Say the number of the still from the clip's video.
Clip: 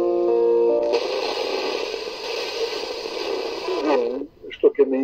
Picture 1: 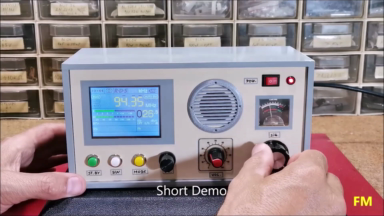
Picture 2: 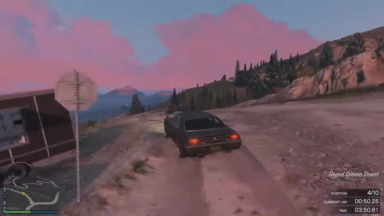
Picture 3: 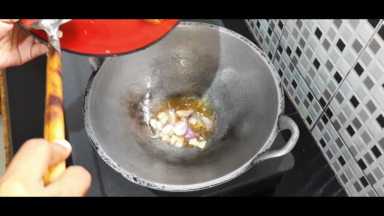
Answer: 1